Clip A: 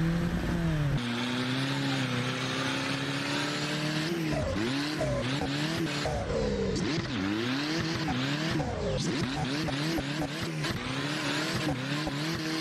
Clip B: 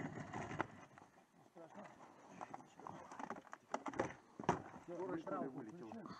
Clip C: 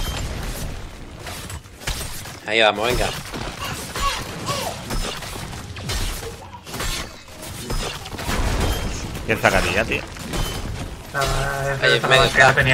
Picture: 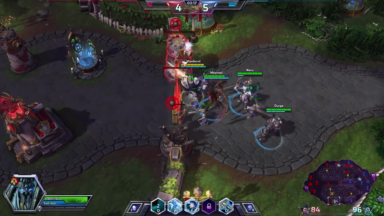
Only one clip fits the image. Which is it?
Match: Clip C